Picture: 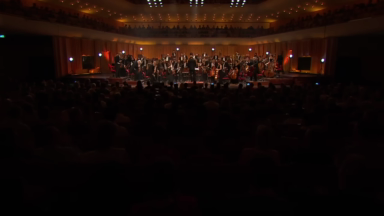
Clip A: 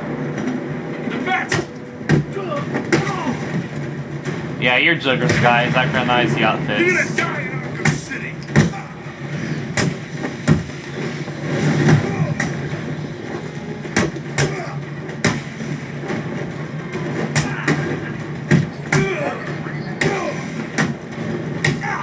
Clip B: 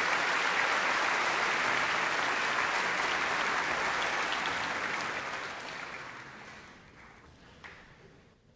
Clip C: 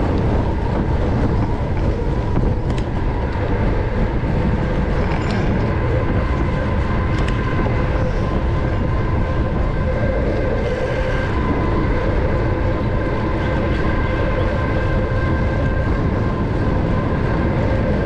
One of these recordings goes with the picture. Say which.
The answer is B